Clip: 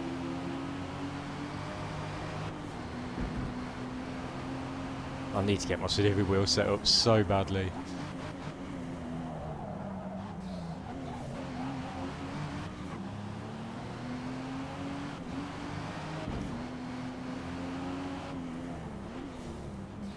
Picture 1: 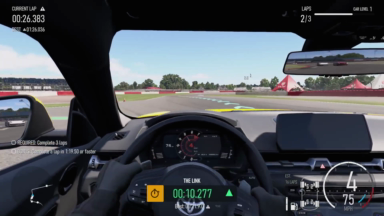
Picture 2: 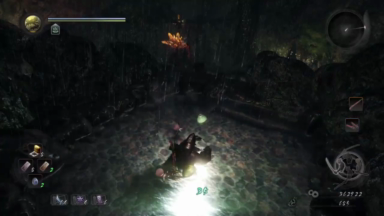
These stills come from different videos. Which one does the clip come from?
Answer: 1